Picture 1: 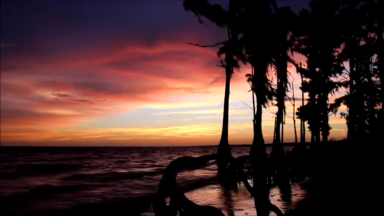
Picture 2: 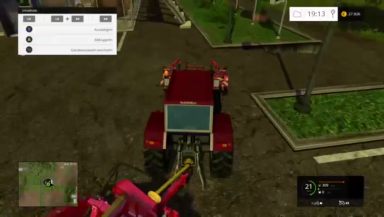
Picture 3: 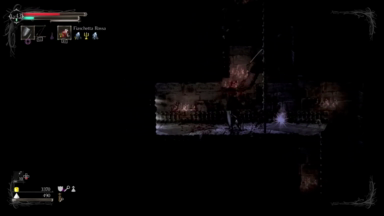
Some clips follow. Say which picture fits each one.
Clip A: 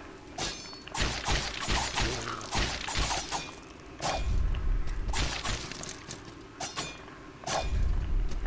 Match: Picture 3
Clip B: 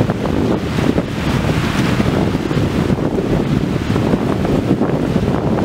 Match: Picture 1